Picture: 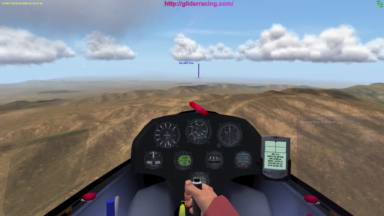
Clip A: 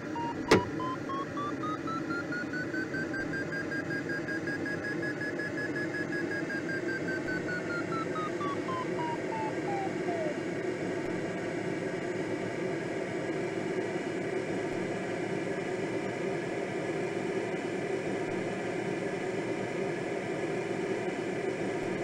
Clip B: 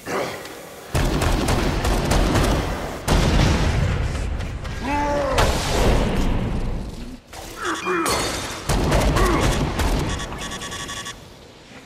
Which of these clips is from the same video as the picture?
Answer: A